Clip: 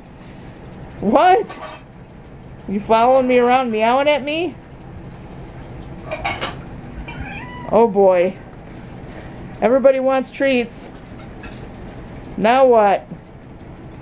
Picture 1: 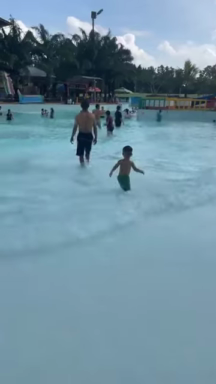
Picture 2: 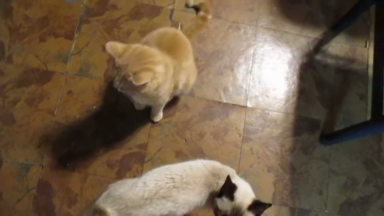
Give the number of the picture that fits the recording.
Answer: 2